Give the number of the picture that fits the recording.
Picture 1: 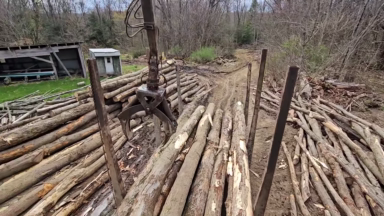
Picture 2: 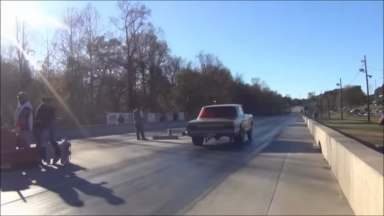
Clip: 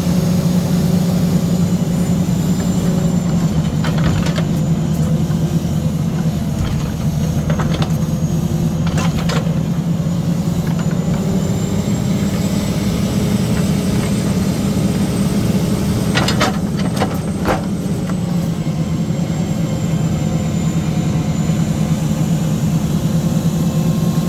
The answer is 1